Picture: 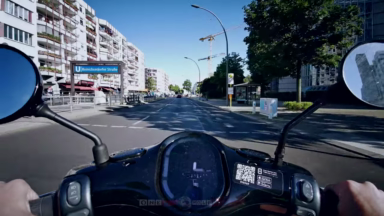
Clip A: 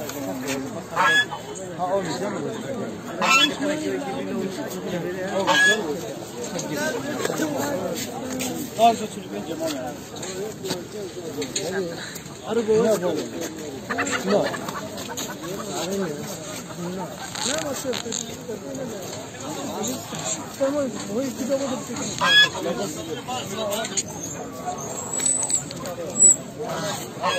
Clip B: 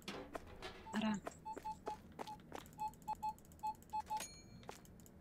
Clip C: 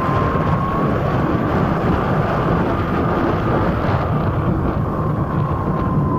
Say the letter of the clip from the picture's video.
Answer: C